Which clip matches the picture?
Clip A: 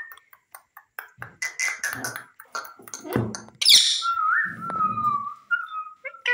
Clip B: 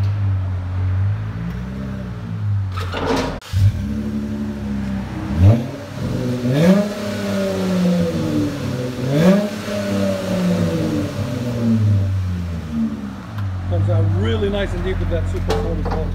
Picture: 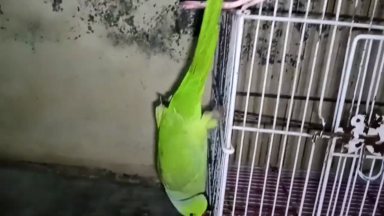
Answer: A